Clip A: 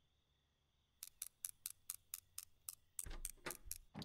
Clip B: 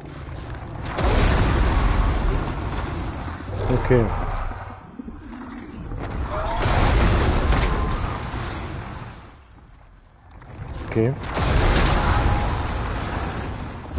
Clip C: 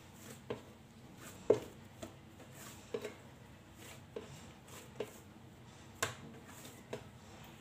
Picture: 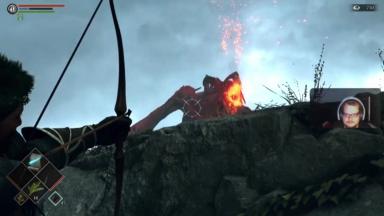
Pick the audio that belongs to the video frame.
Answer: B